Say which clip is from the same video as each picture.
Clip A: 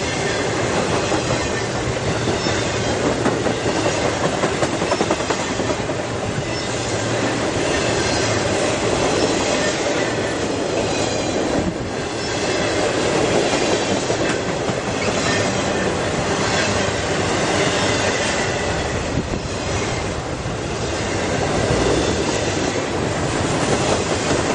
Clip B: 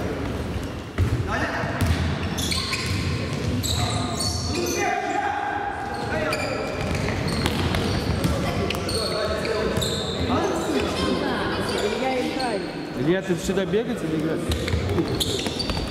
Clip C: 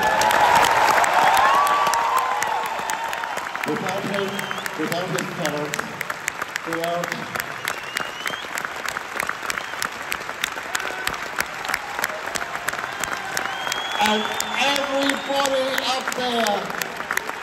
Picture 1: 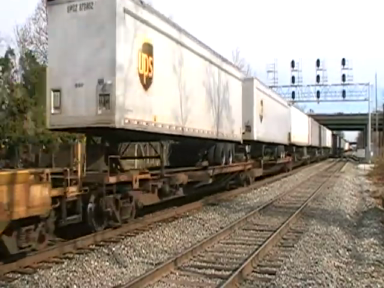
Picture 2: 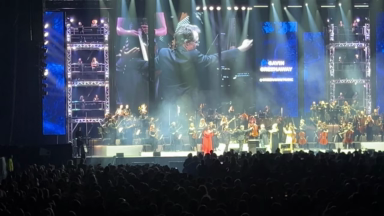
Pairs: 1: A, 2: C